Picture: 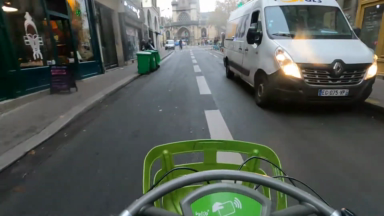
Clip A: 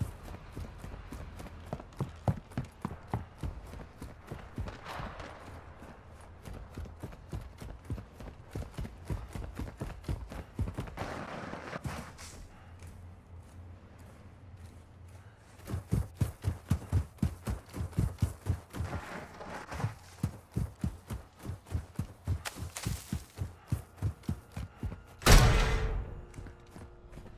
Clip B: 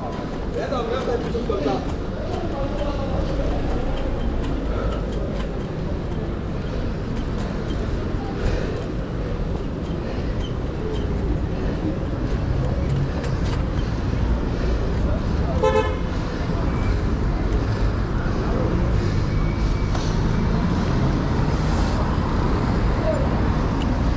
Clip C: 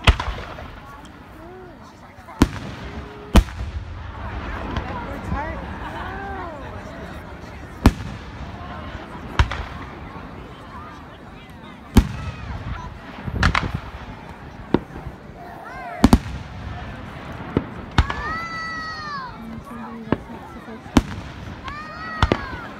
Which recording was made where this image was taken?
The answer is B